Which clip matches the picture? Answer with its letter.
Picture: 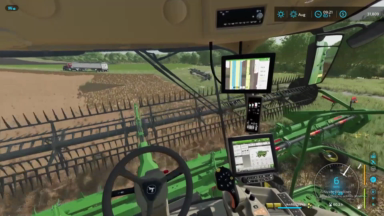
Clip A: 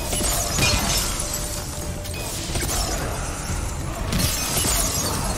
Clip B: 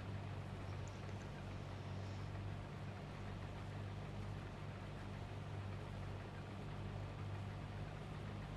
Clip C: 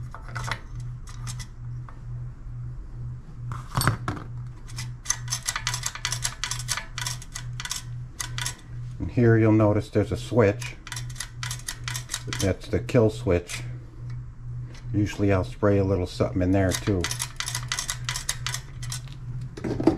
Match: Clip B